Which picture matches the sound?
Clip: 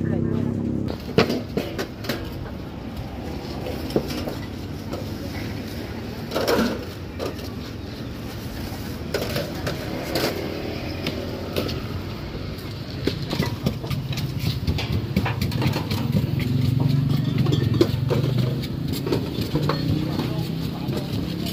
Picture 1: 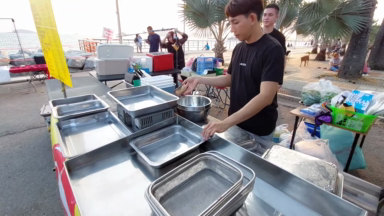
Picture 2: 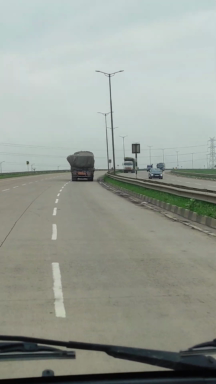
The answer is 1